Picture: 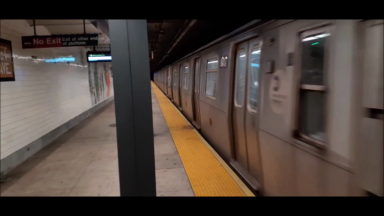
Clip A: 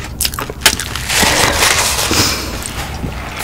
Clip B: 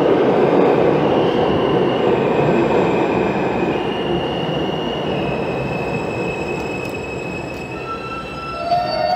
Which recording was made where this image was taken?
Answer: B